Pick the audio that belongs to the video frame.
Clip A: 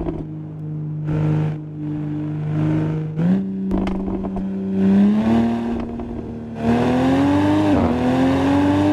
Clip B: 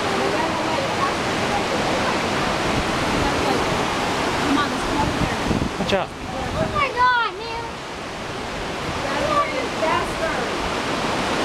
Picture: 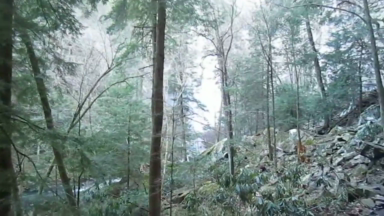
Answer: B